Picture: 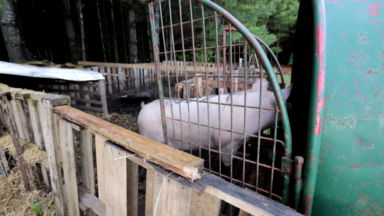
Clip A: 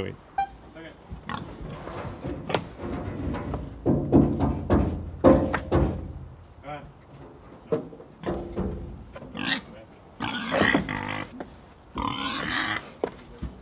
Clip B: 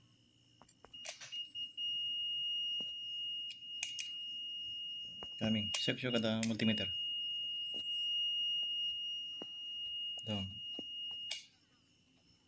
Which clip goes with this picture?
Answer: A